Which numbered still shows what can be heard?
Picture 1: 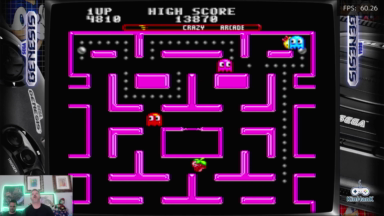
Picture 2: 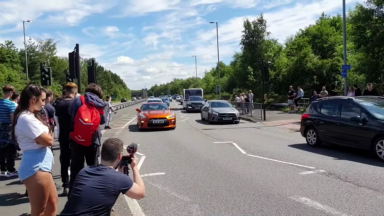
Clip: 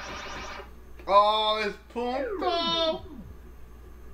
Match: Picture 1